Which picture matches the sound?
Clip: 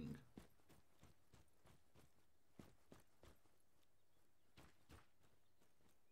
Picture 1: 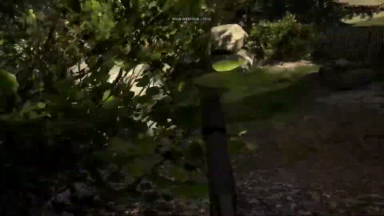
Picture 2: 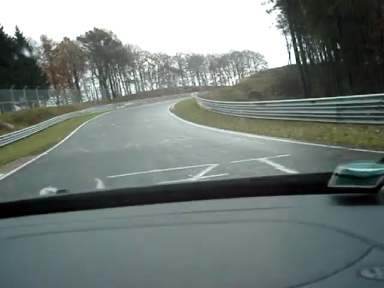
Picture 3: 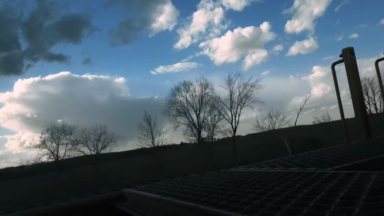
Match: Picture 1